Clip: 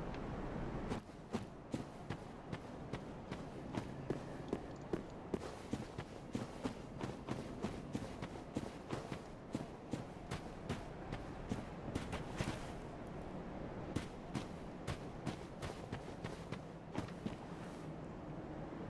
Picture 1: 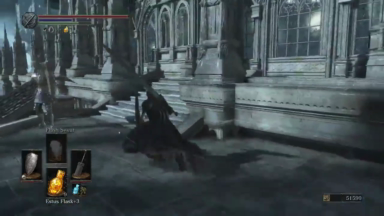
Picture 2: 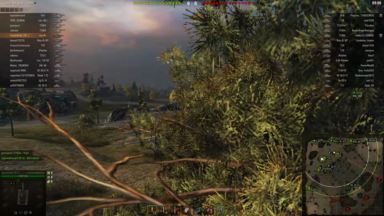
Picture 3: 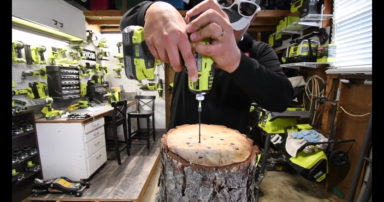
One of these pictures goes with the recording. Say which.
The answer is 1